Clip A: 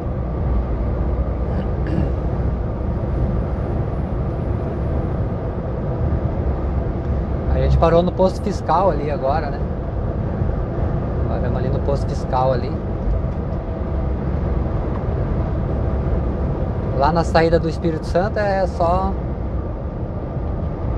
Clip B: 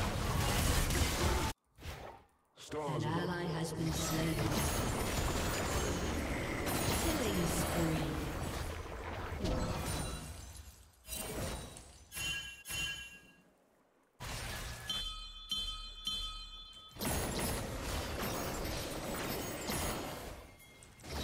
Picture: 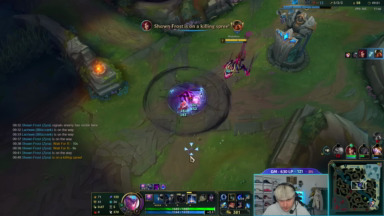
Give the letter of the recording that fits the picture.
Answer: B